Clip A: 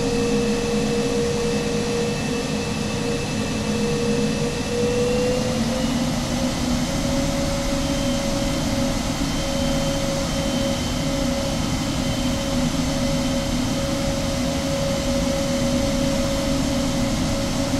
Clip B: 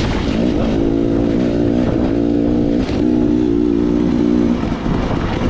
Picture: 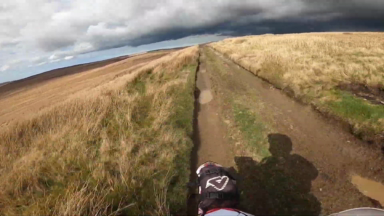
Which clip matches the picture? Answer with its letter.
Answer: B